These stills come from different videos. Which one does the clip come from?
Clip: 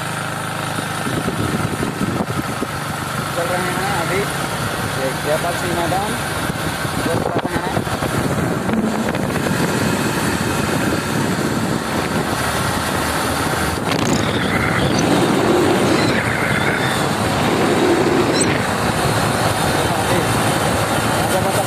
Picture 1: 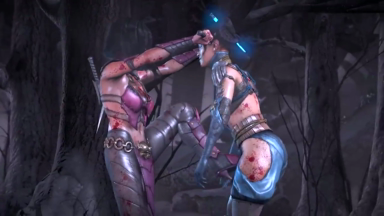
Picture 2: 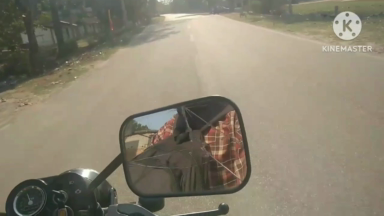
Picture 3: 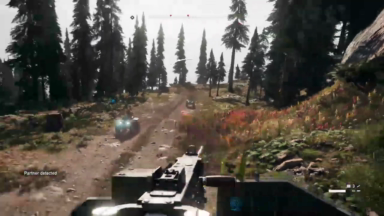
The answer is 2